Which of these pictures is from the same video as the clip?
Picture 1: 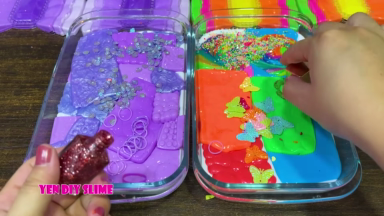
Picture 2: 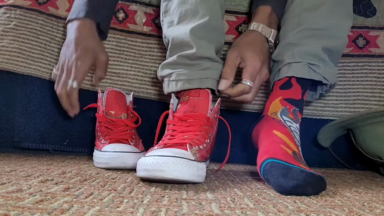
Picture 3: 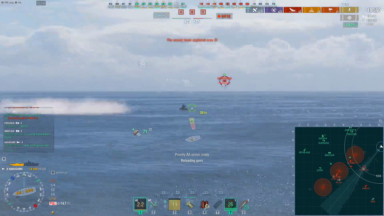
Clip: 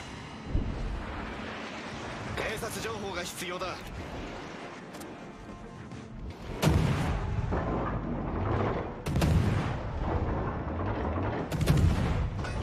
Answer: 3